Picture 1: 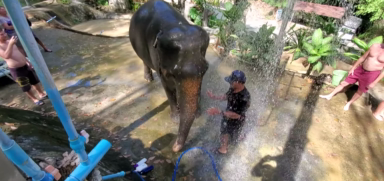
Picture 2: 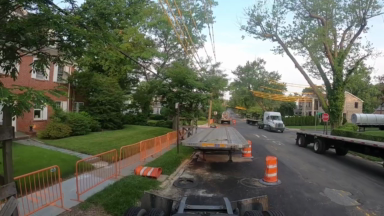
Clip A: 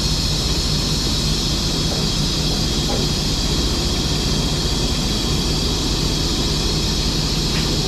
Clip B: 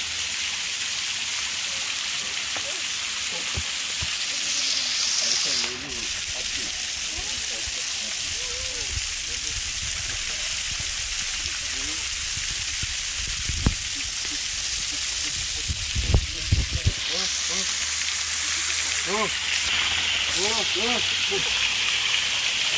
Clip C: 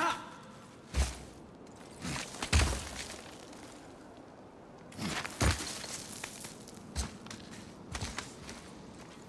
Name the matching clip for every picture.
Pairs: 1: B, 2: A